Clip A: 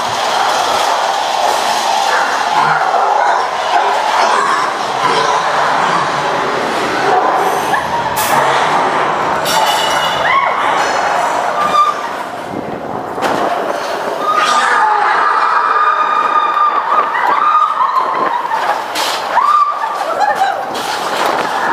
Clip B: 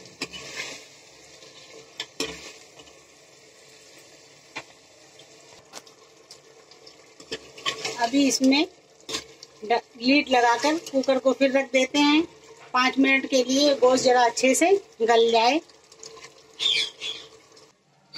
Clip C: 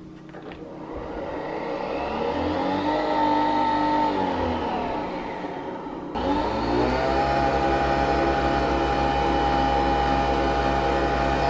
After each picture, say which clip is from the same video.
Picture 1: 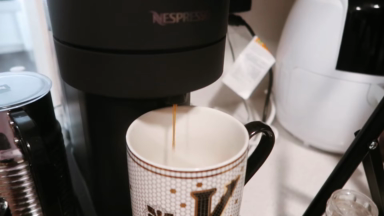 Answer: C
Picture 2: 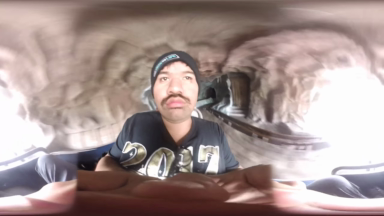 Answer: A